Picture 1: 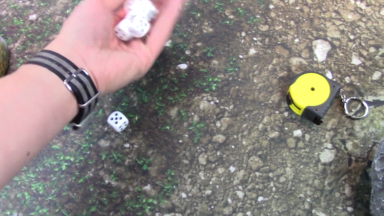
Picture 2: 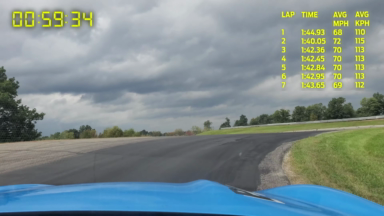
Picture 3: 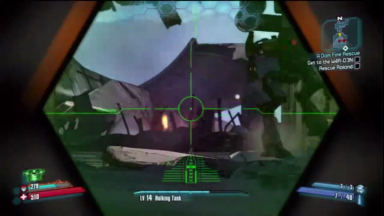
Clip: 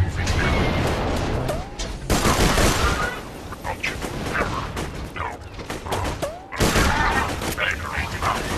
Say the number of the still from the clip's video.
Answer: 3